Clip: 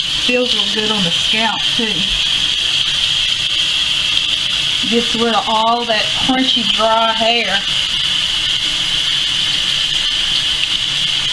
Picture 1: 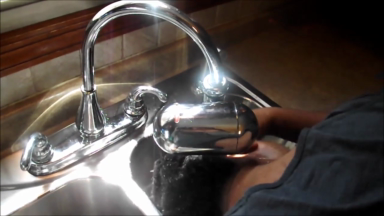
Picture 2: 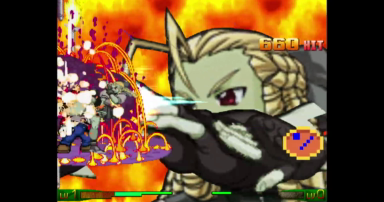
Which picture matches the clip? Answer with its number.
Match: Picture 1